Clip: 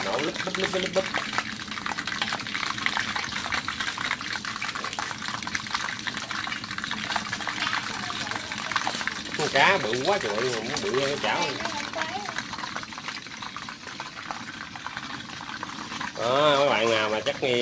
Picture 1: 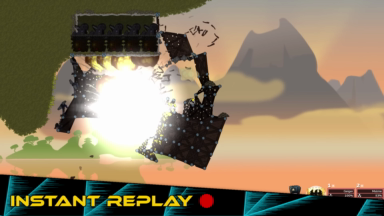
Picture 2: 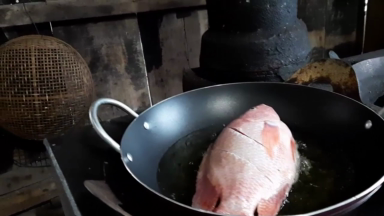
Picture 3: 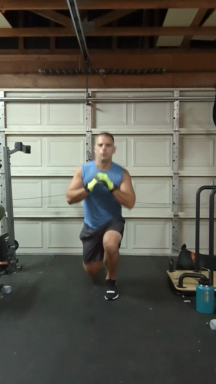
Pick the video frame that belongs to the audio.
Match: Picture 2